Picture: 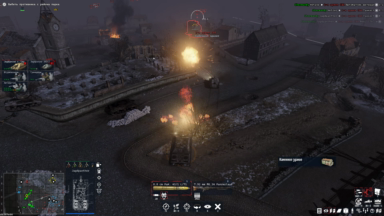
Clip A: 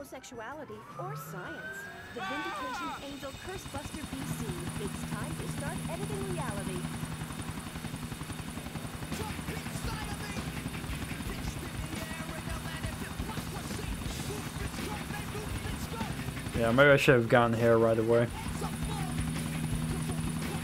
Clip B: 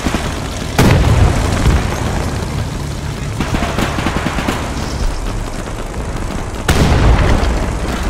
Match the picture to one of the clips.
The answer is B